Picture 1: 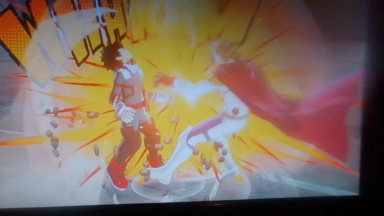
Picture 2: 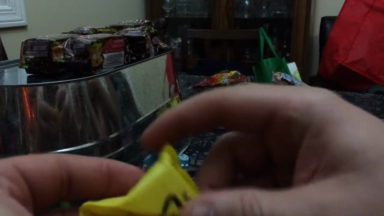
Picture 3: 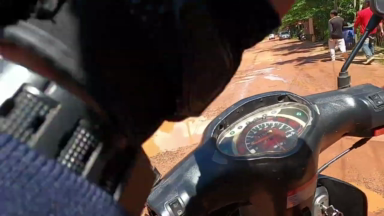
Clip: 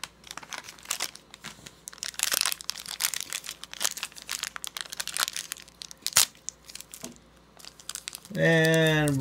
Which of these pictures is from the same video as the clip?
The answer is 2